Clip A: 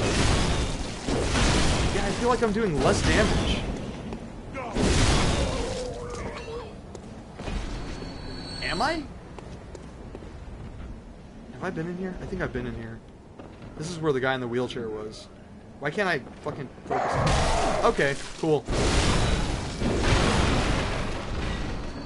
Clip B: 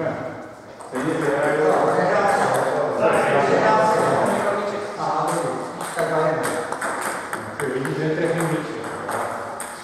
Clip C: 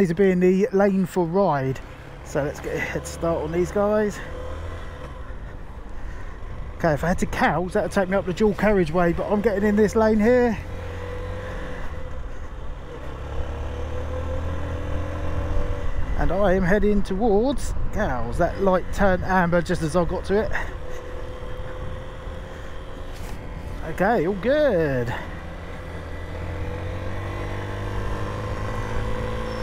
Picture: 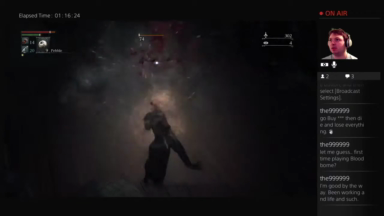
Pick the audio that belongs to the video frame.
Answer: A